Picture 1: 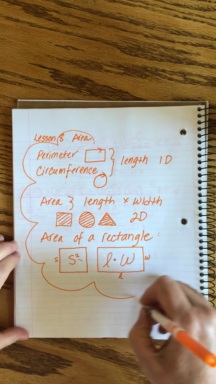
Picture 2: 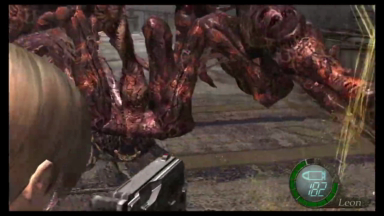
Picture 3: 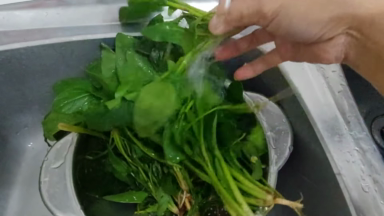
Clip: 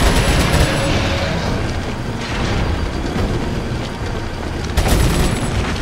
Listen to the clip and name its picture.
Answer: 2